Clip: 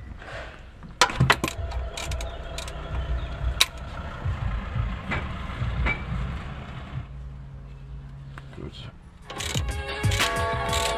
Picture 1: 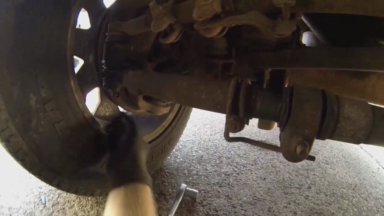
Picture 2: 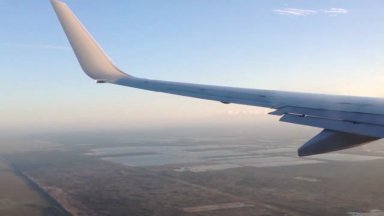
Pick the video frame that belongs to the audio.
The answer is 1